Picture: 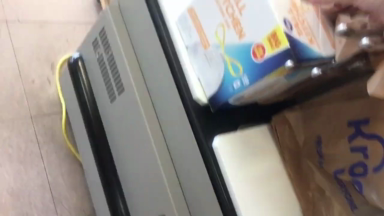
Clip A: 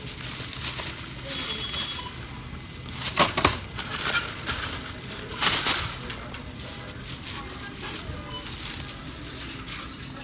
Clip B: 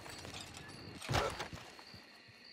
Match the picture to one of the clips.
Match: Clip A